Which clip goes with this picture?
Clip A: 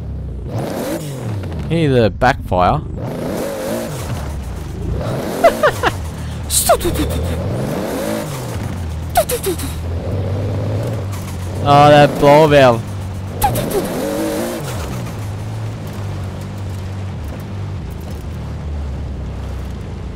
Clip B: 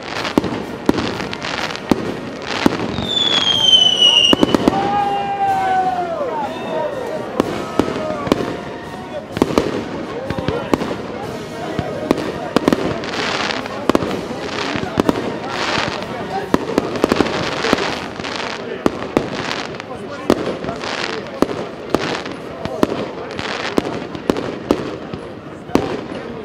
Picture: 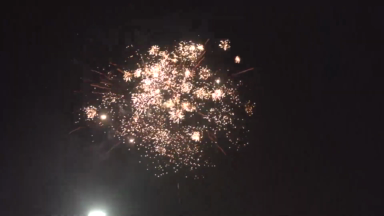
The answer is B